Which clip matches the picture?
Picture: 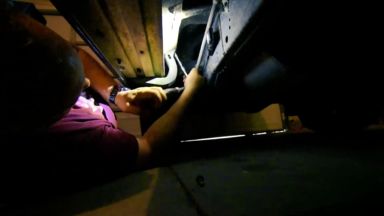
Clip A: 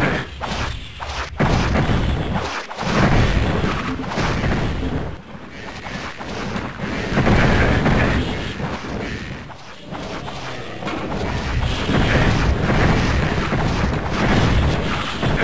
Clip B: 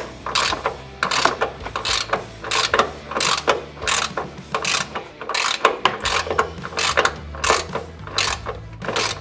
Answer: B